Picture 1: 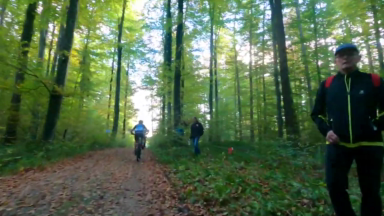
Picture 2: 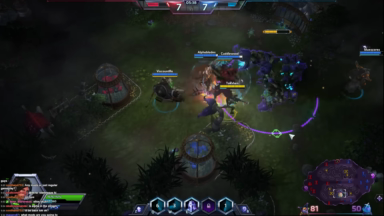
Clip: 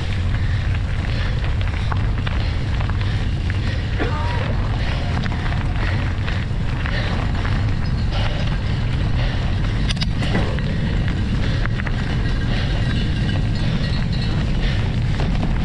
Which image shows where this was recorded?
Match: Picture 1